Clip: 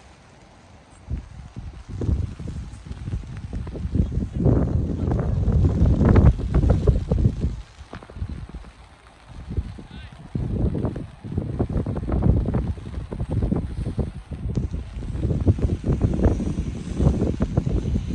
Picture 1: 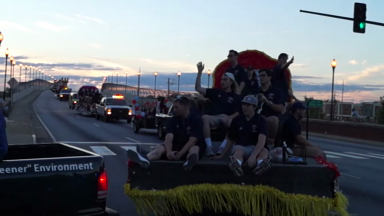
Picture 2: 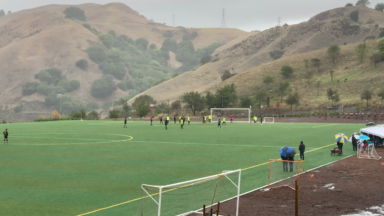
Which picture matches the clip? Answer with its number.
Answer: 2